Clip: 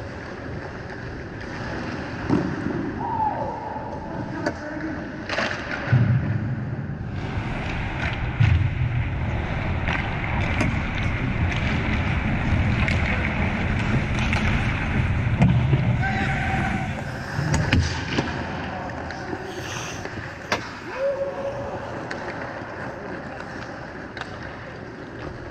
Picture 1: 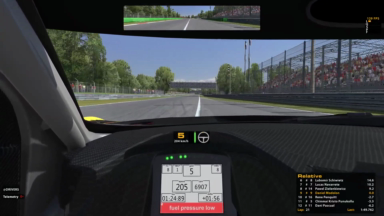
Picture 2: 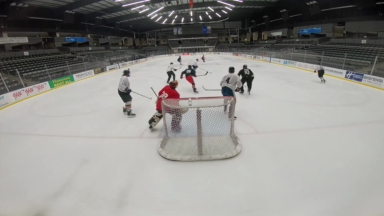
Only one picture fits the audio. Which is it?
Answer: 2